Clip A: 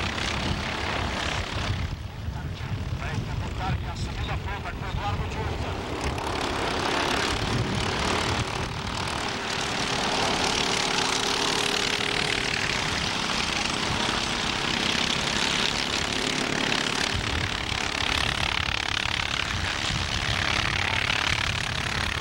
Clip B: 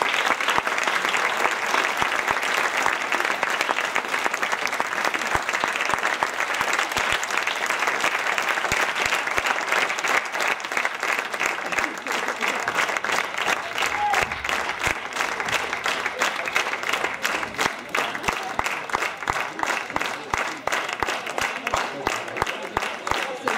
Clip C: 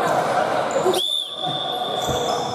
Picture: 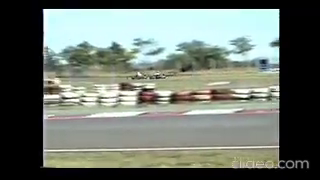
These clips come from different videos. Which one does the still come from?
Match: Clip A